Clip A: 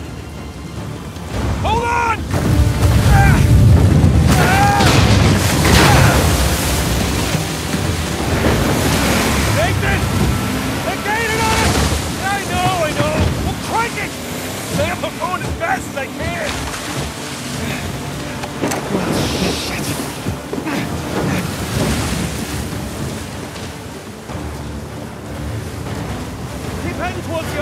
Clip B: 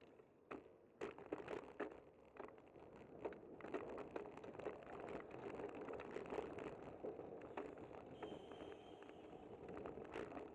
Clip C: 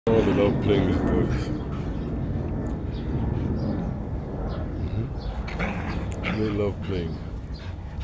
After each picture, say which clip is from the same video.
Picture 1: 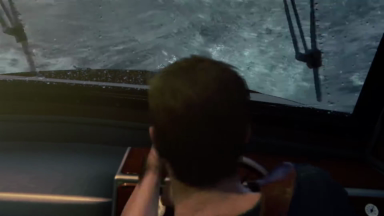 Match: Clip A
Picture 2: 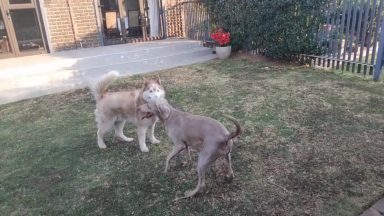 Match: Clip C